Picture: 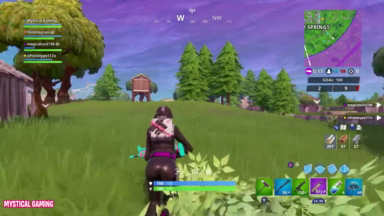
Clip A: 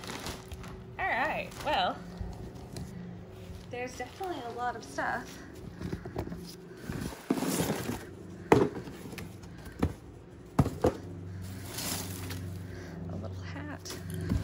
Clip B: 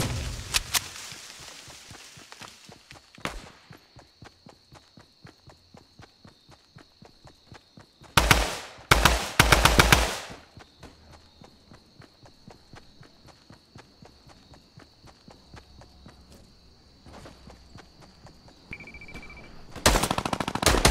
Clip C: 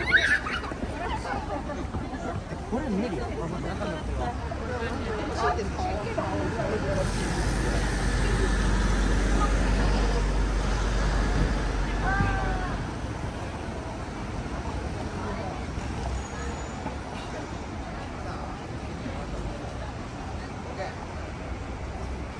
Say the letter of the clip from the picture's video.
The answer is B